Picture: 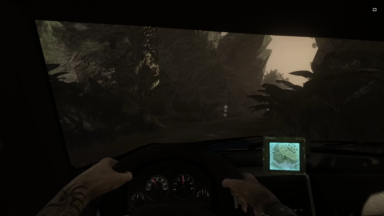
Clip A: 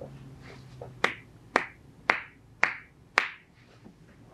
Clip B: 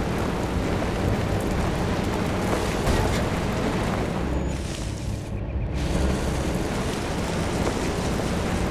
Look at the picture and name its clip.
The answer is B